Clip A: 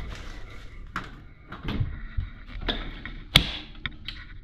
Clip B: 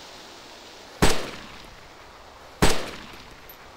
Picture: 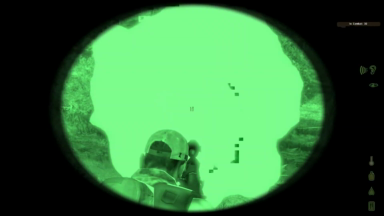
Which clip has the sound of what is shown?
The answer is B